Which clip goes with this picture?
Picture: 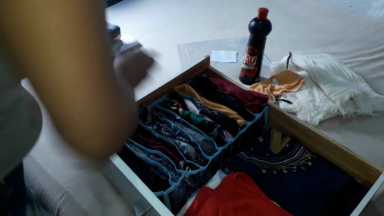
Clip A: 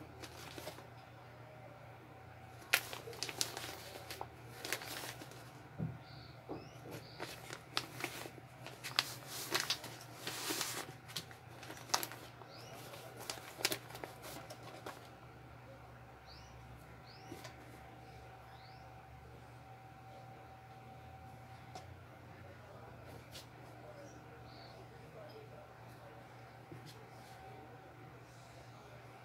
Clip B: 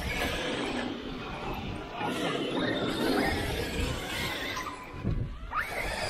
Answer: A